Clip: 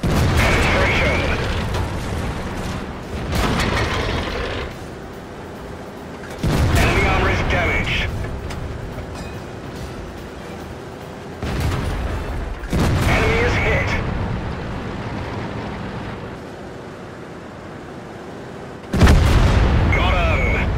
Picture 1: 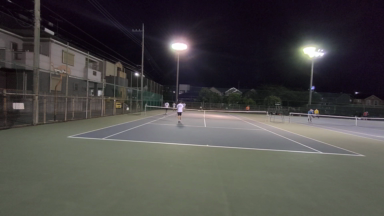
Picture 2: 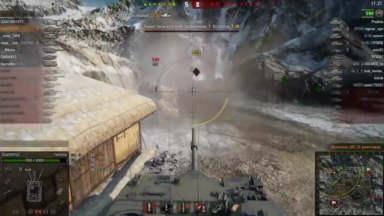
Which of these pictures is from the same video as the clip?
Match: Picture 2